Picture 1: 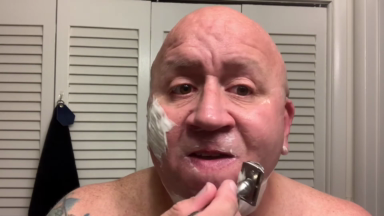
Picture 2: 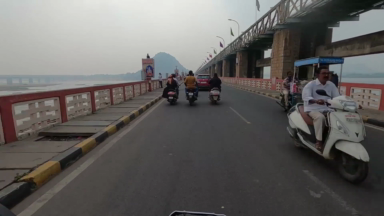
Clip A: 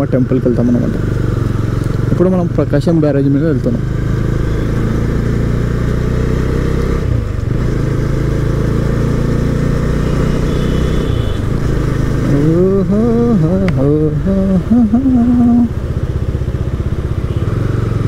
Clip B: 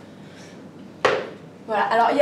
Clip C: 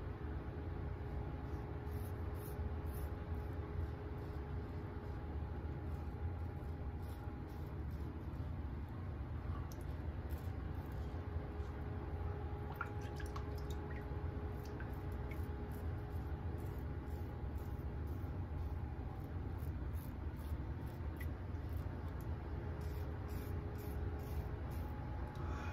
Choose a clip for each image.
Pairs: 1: C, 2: A